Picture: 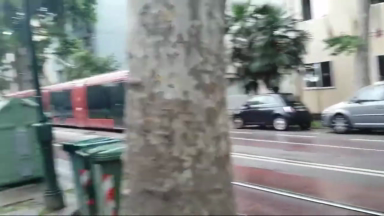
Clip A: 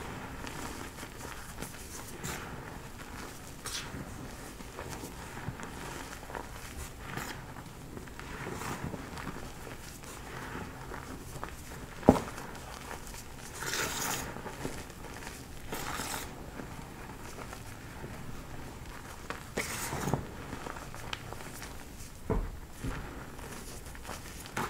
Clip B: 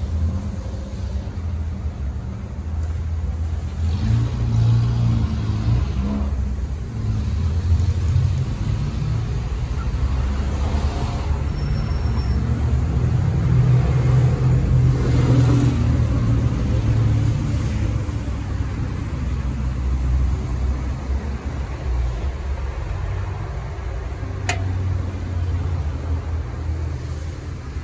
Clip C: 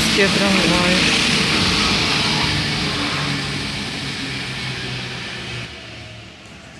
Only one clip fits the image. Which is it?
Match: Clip C